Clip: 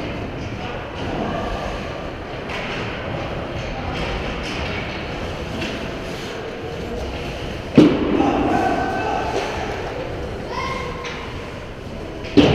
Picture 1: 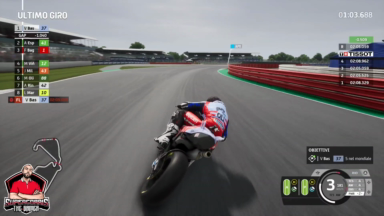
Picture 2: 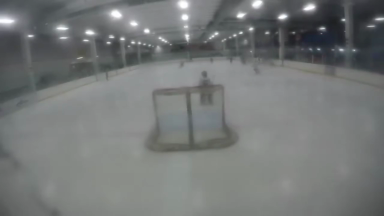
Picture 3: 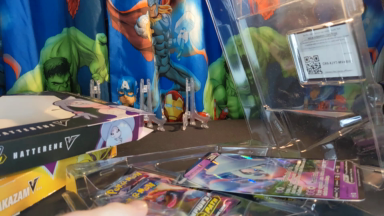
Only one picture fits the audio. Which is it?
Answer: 2